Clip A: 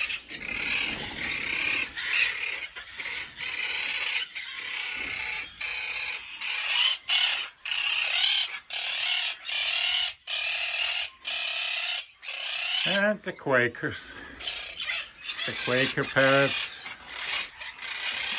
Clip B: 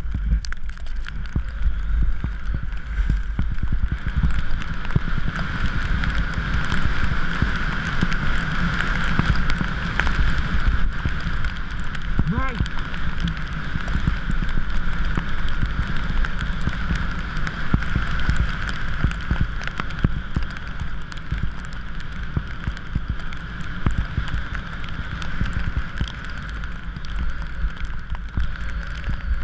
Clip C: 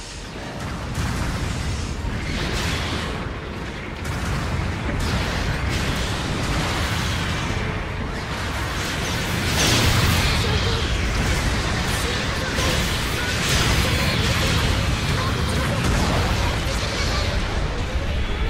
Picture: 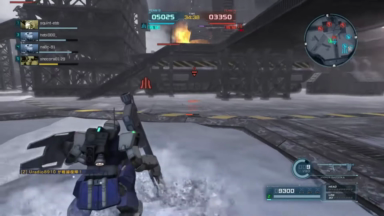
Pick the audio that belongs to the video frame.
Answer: C